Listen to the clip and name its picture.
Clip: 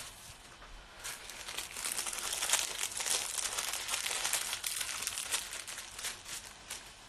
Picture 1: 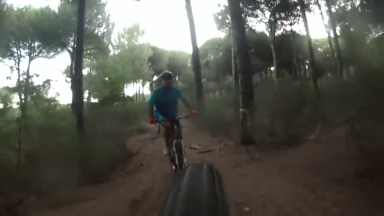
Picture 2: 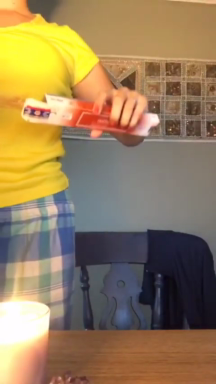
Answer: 2